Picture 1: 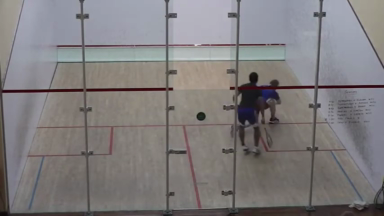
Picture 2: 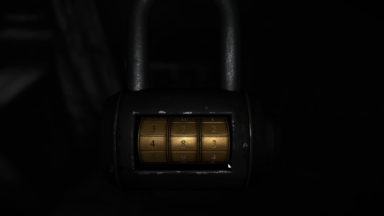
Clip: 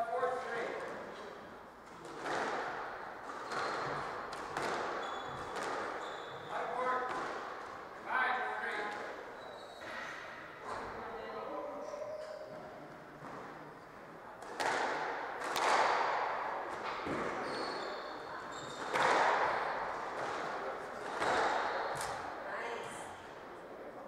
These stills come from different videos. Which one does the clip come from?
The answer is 1